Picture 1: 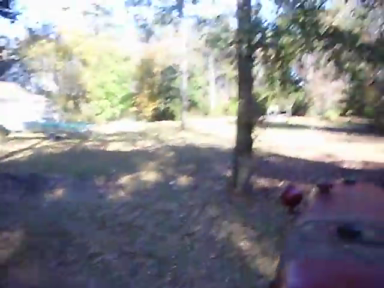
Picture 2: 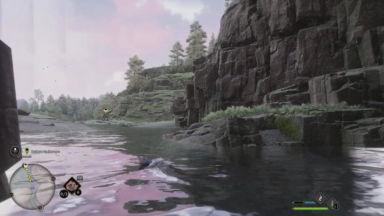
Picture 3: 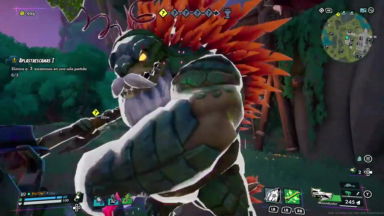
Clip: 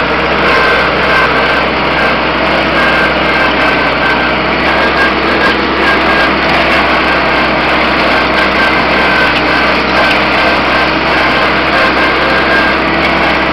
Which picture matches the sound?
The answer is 1